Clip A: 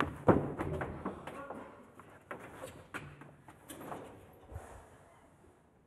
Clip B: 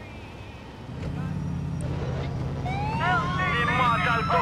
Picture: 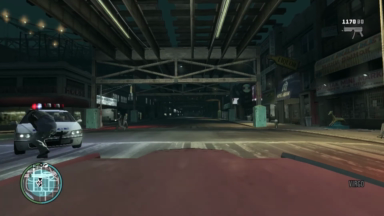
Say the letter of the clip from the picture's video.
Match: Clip B